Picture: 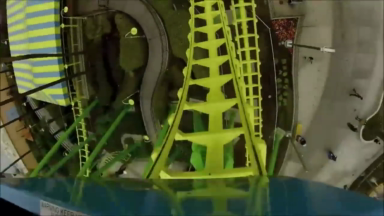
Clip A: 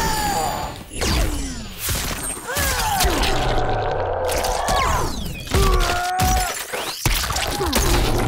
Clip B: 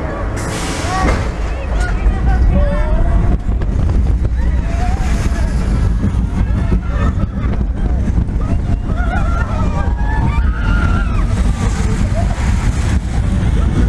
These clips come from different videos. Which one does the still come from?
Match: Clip B